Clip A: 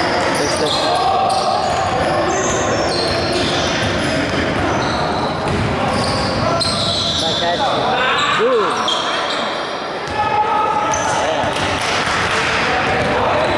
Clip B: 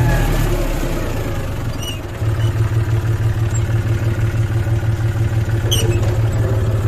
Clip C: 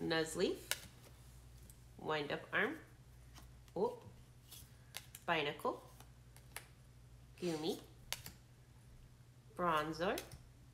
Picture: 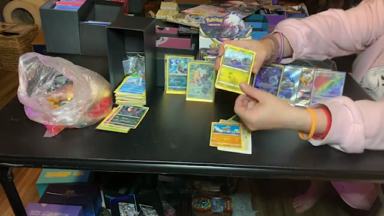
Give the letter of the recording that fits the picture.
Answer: C